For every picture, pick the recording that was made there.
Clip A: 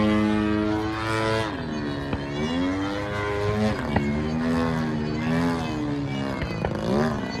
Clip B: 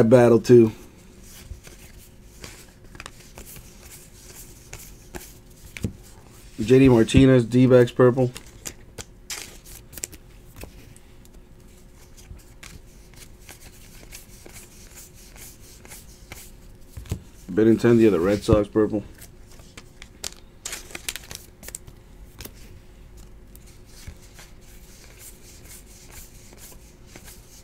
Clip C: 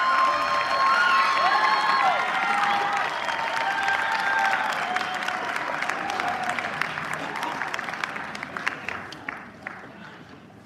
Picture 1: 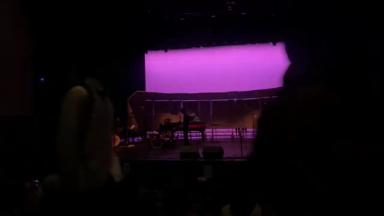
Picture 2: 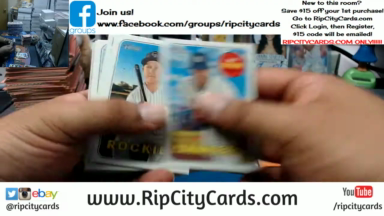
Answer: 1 C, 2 B